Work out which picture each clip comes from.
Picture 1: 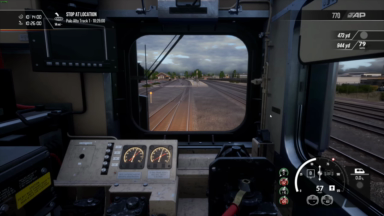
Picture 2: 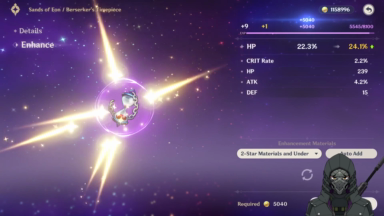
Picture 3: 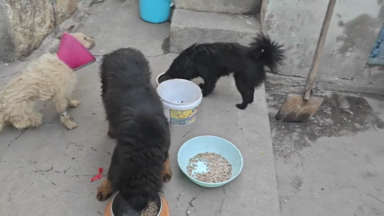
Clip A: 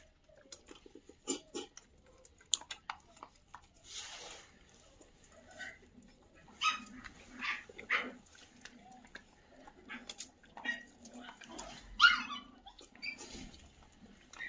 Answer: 3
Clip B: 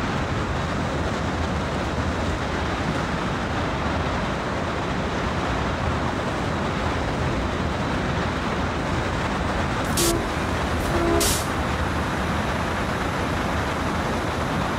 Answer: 1